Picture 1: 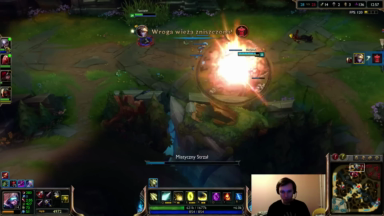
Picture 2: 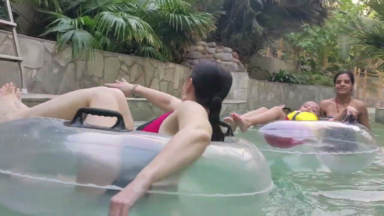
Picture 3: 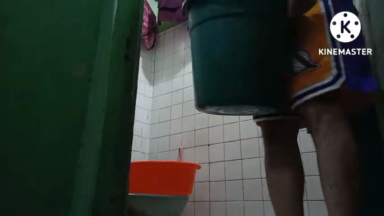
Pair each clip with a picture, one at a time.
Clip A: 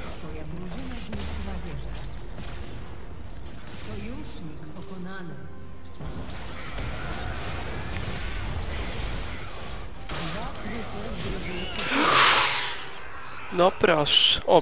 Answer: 1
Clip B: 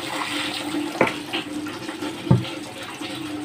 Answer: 3